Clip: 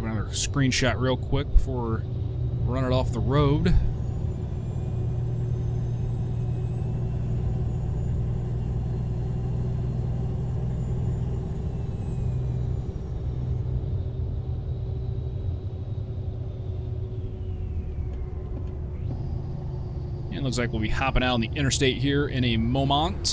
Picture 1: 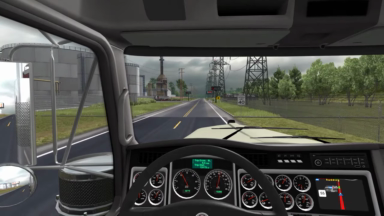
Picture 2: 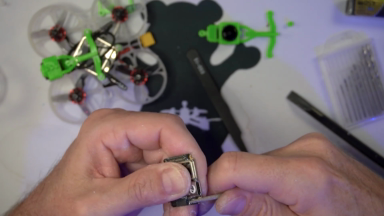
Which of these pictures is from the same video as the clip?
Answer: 1